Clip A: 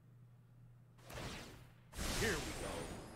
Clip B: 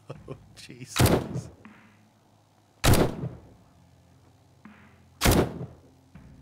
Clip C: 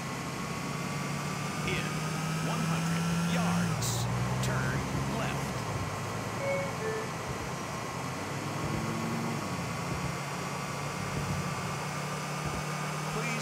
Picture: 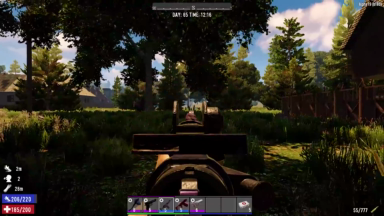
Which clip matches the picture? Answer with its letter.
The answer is B